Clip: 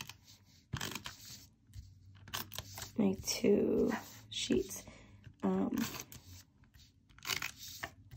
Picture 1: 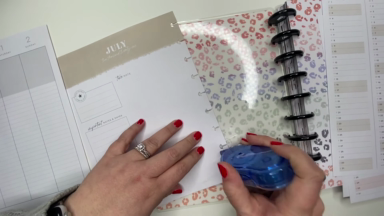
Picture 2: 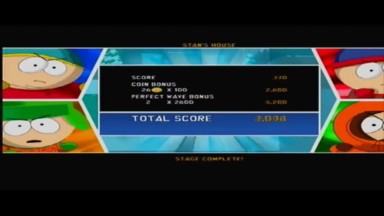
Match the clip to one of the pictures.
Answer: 1